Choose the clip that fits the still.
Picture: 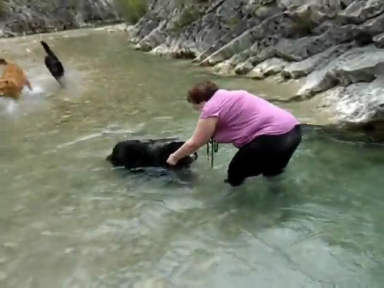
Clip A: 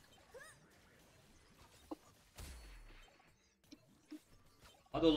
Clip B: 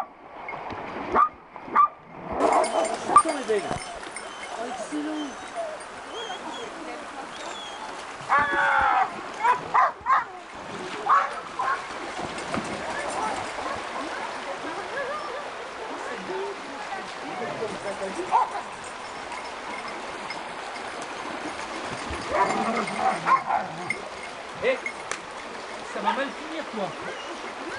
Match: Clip B